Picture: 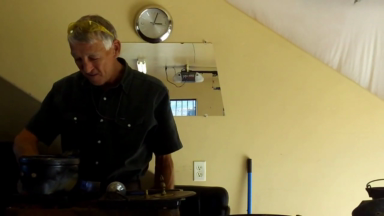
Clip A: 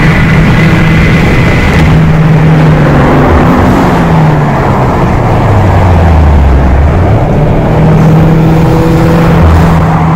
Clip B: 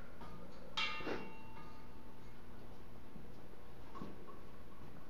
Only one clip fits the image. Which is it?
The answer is B